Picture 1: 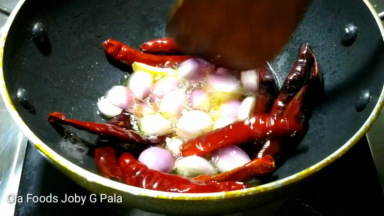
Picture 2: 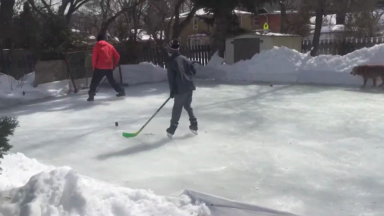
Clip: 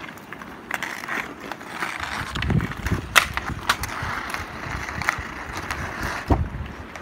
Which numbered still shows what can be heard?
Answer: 2